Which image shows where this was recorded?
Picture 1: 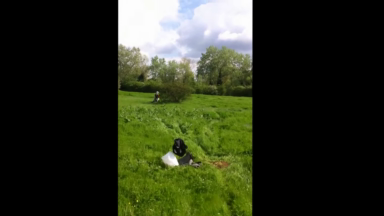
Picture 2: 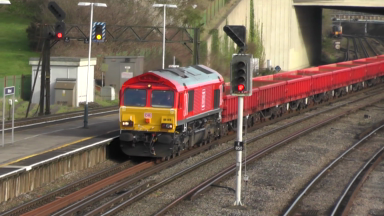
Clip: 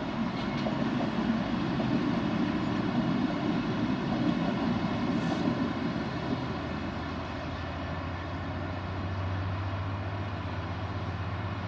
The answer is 2